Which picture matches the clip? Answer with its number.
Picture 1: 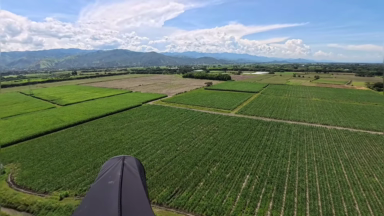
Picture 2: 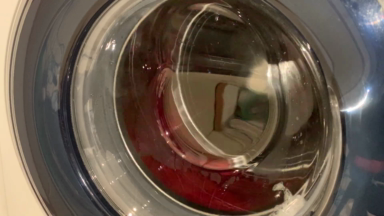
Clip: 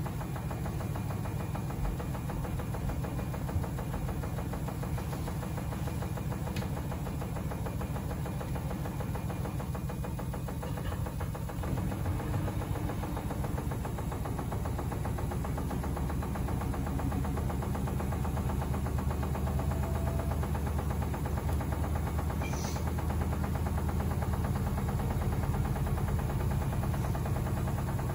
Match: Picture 2